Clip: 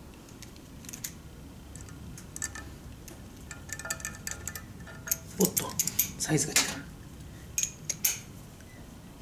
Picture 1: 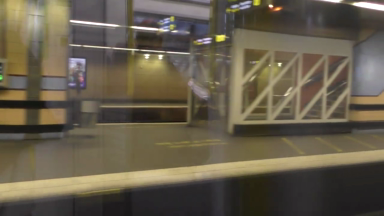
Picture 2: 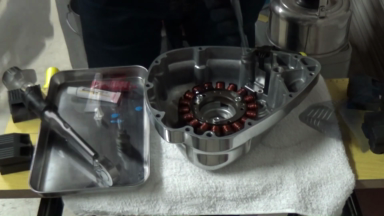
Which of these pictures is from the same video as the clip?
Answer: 2